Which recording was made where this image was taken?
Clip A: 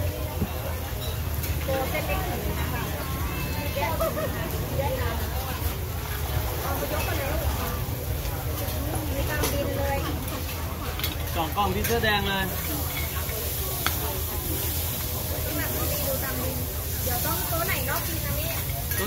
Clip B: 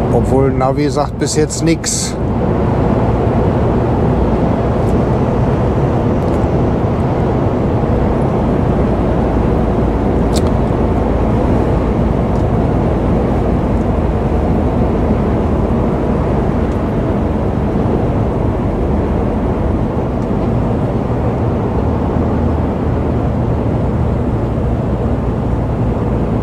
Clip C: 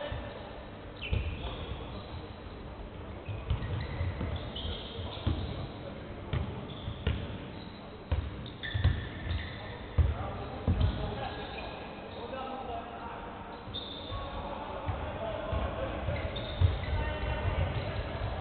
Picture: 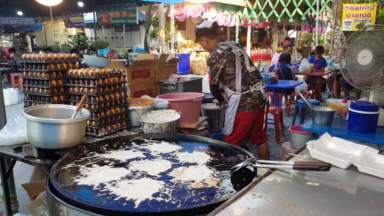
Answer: A